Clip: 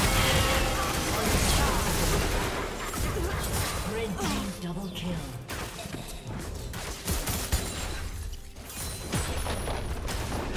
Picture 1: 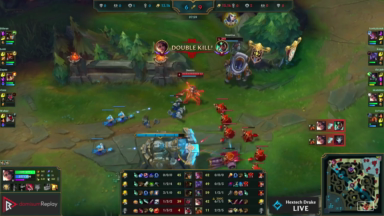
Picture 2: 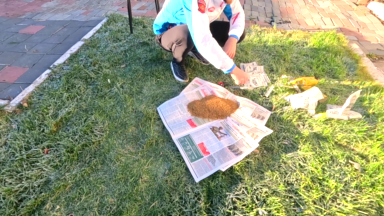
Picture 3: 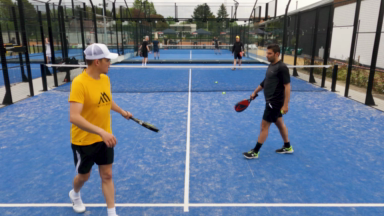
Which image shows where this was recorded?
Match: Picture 1